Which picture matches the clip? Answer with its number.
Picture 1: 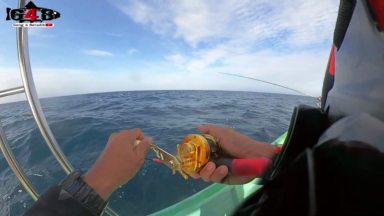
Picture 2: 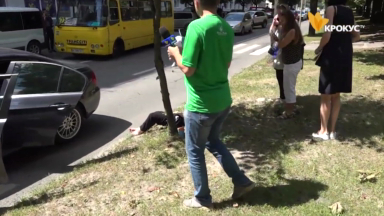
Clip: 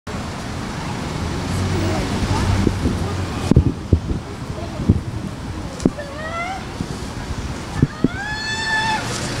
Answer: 2